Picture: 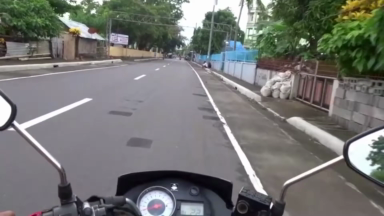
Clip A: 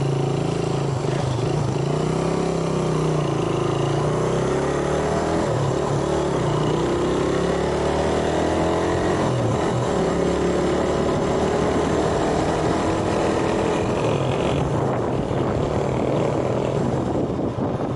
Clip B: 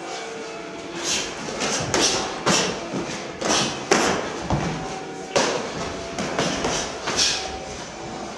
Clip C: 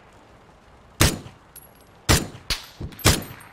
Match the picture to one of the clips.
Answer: A